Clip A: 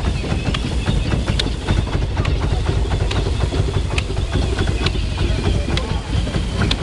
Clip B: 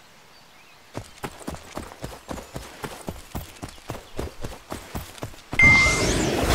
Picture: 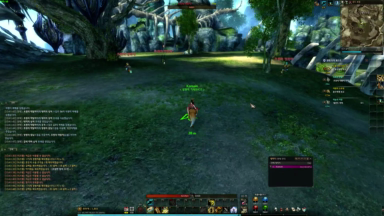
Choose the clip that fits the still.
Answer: B